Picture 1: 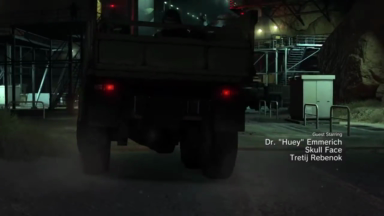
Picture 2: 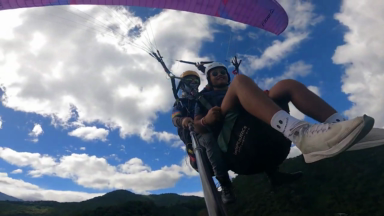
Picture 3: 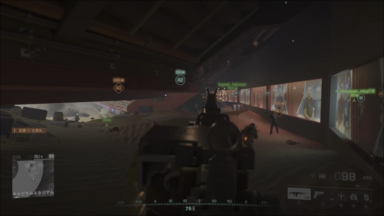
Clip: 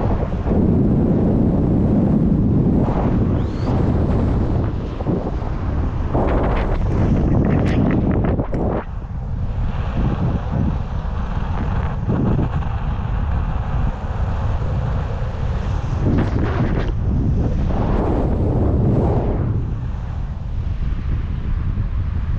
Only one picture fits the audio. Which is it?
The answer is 2